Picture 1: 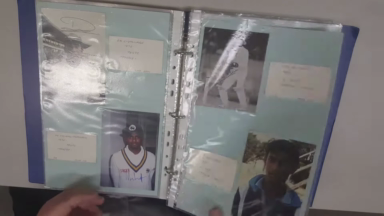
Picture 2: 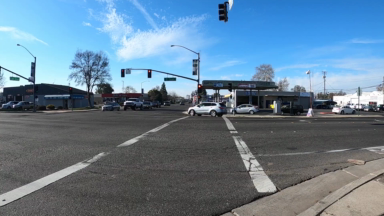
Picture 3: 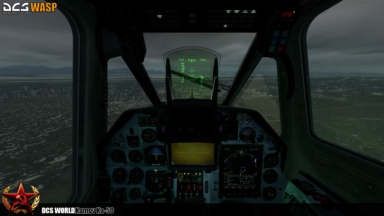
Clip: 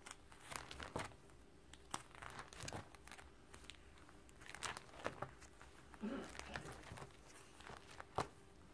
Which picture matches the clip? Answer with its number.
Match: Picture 1